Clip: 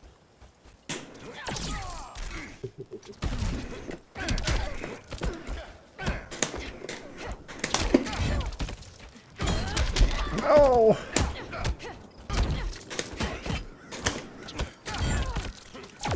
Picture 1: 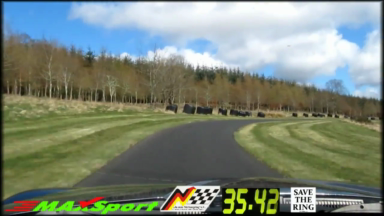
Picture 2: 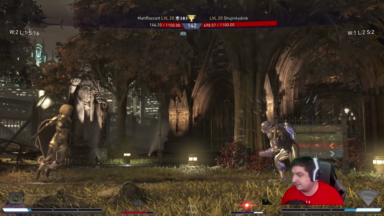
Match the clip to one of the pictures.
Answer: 2